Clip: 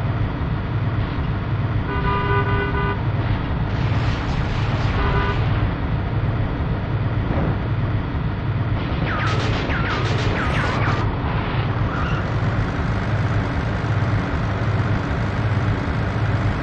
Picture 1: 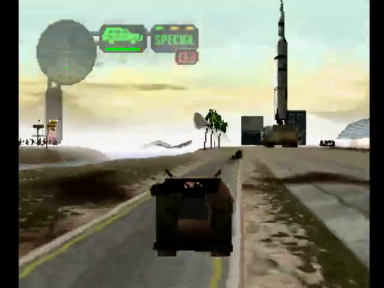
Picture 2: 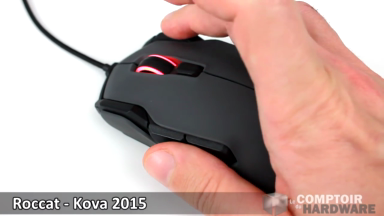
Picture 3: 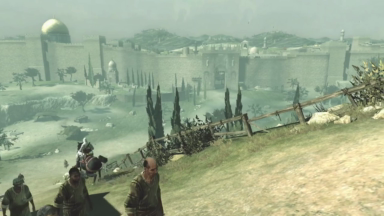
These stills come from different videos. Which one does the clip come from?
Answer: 1